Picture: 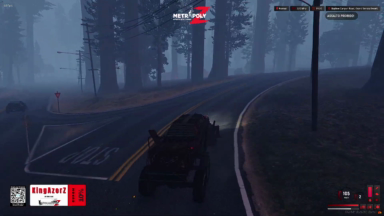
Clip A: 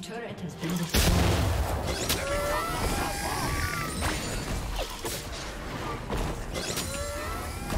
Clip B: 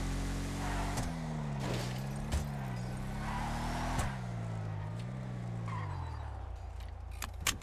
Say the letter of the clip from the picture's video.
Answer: B